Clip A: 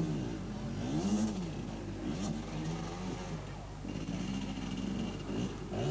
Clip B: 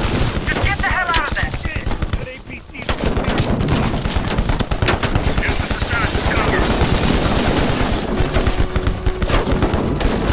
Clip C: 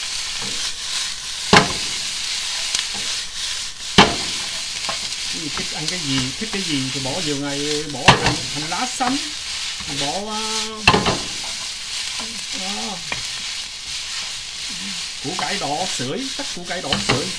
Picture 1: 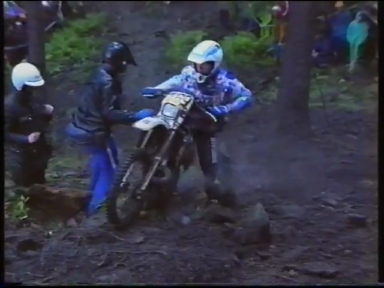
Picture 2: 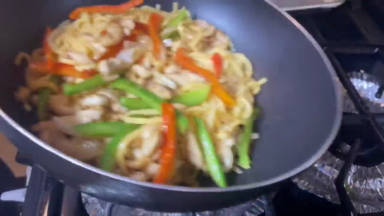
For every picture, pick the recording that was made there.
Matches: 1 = A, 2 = C